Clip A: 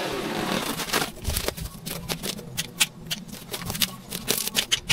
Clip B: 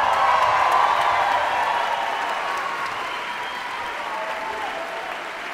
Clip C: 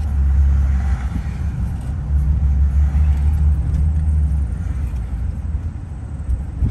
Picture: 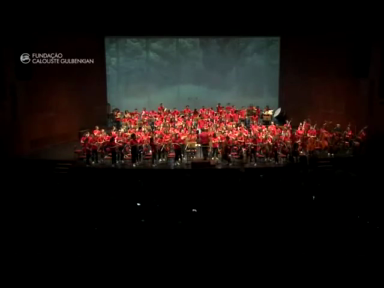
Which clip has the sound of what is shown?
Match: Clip B